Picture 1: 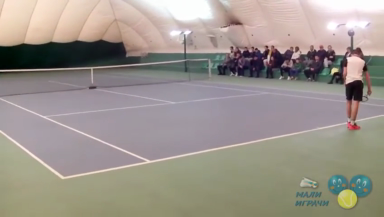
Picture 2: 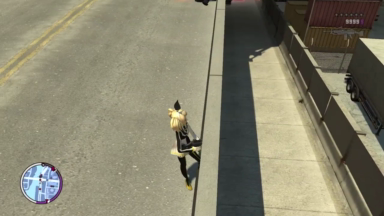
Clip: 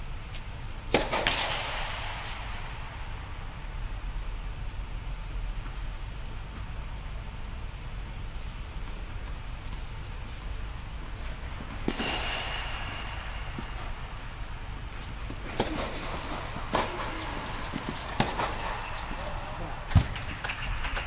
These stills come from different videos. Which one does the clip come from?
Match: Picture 1